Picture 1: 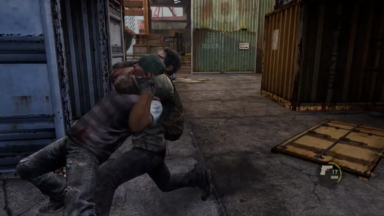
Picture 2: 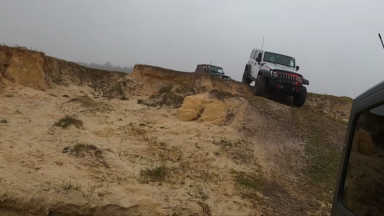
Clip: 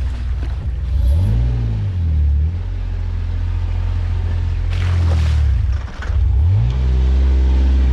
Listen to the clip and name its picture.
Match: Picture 2